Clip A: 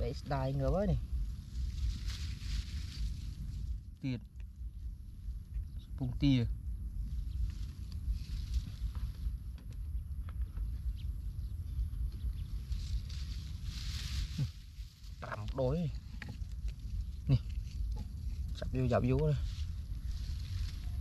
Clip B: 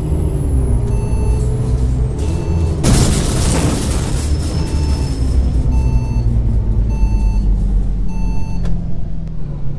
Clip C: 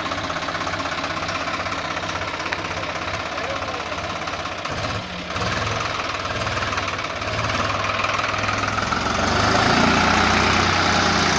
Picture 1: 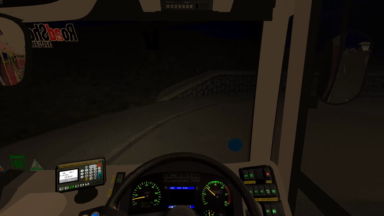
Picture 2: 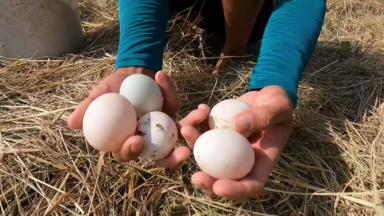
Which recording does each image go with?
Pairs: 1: B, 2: A